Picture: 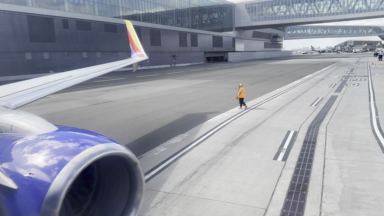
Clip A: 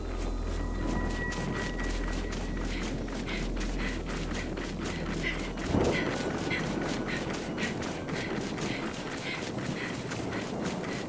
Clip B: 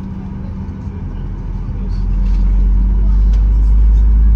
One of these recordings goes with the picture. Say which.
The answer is B